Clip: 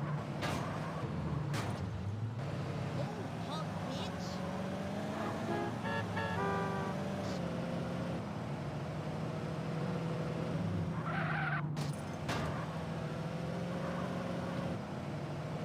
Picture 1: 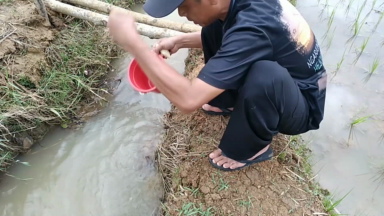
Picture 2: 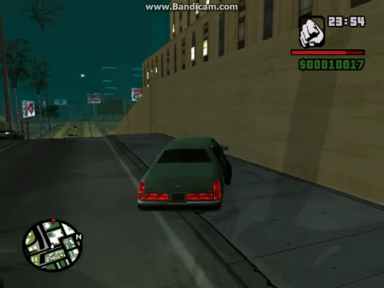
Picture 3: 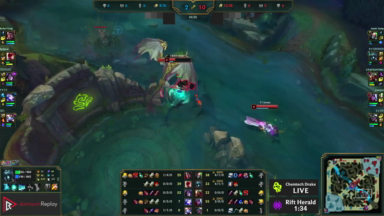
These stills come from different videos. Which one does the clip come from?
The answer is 2